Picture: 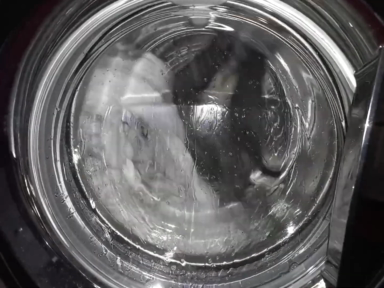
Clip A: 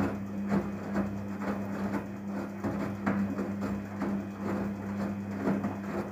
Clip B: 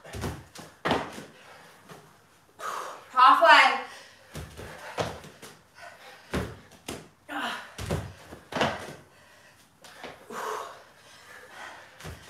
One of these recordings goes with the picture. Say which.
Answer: A